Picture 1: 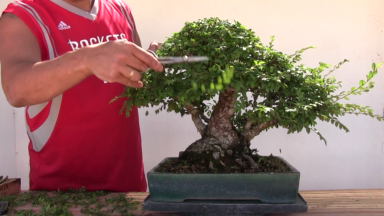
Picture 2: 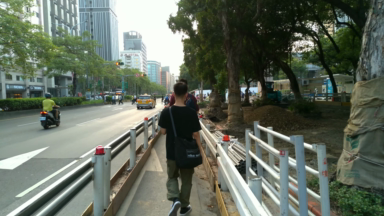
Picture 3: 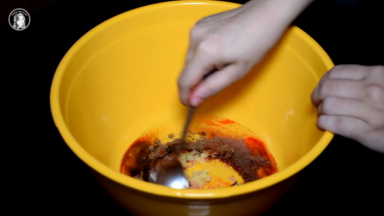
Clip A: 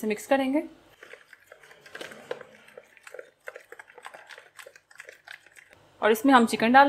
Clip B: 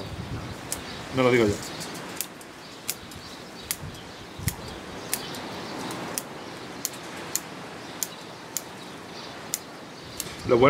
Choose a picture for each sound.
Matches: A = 3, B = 1